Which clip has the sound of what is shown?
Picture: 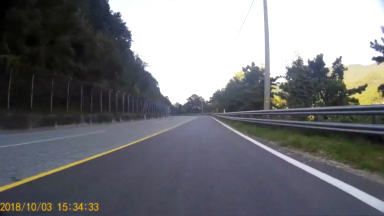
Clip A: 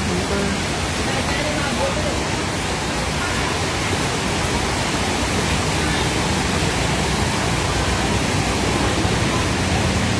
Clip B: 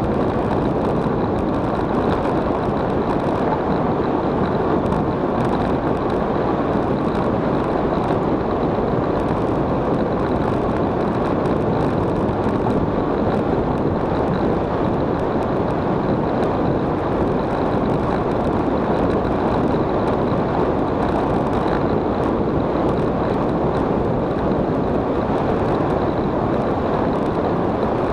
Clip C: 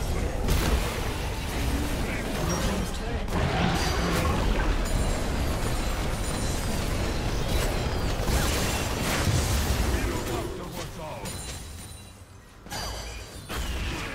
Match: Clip B